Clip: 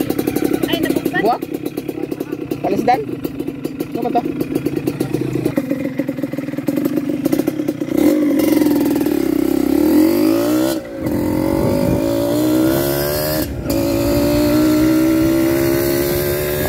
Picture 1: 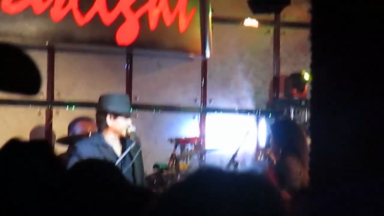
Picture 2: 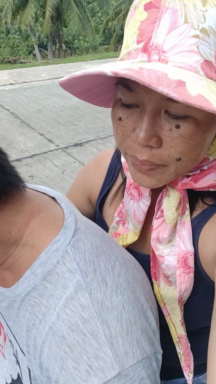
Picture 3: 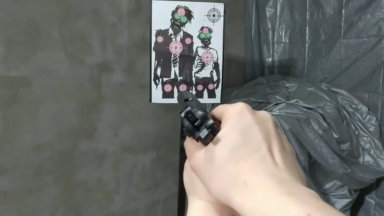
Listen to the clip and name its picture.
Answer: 2